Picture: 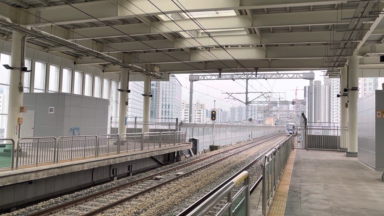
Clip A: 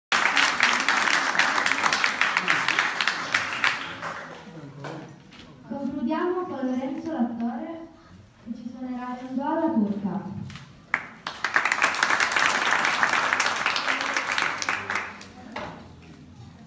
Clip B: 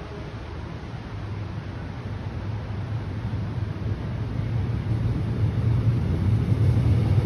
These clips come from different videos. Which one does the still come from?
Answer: B